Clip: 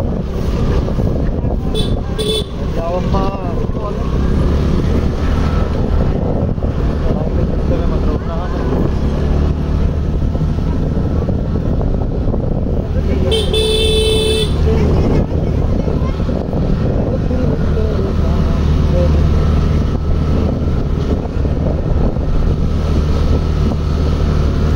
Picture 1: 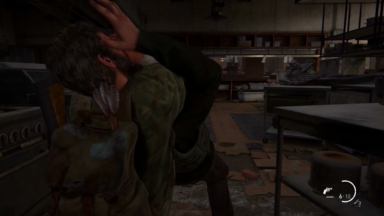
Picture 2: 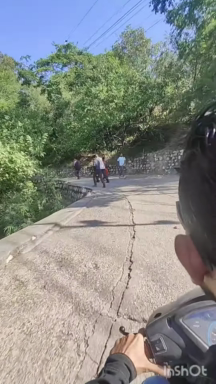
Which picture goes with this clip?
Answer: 2